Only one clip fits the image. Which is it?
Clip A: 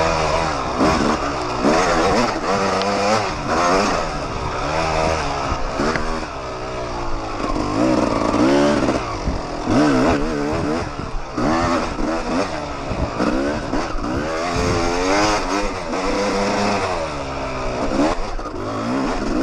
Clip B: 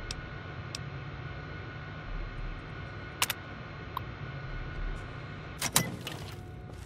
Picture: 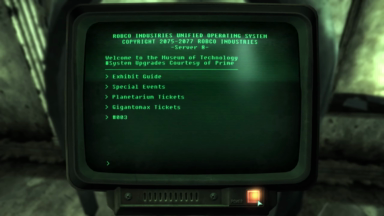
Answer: B